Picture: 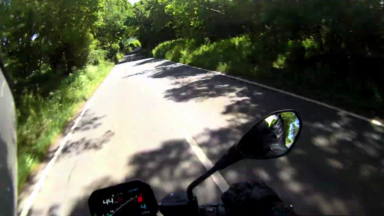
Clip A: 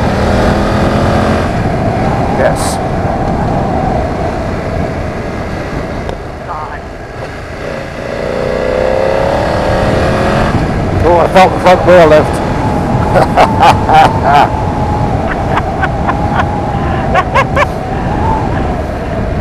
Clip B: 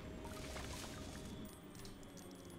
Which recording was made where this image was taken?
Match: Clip A